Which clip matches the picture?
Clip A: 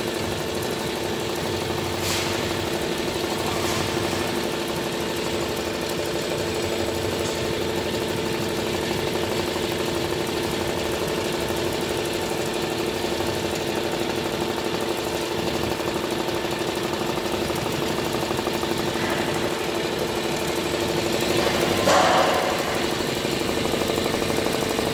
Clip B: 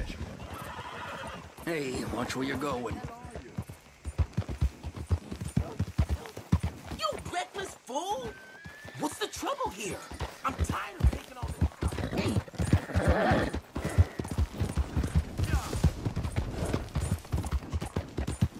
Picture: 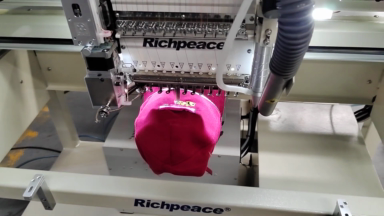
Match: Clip A